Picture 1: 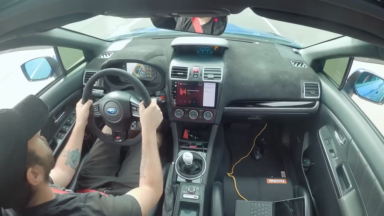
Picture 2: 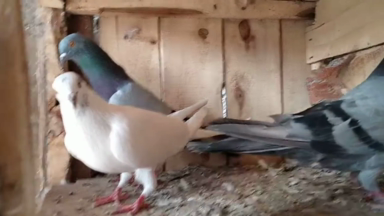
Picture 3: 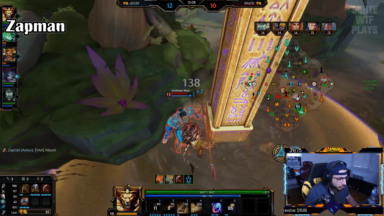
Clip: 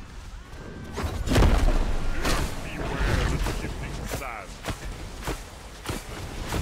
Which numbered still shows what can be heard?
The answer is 3